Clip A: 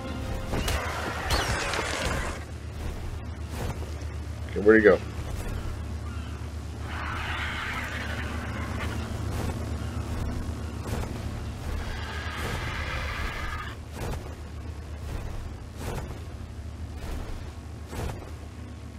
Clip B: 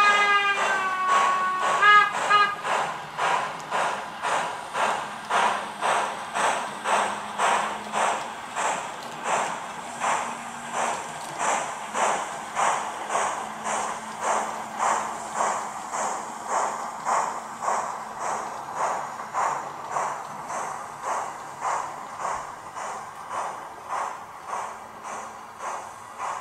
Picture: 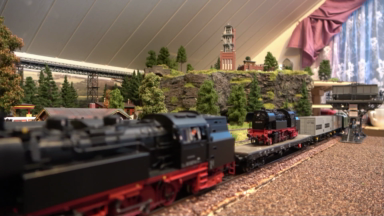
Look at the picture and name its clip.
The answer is B